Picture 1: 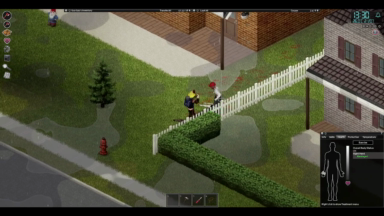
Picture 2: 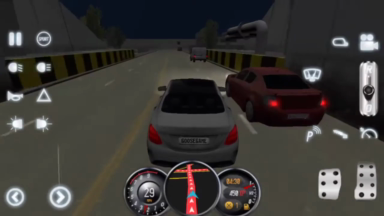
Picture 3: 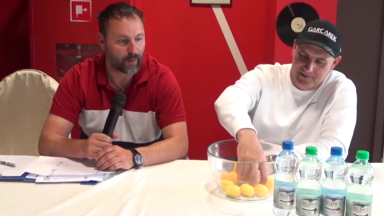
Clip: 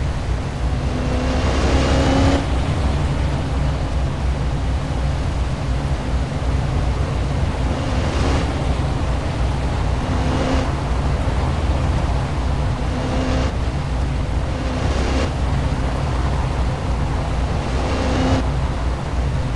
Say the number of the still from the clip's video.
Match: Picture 2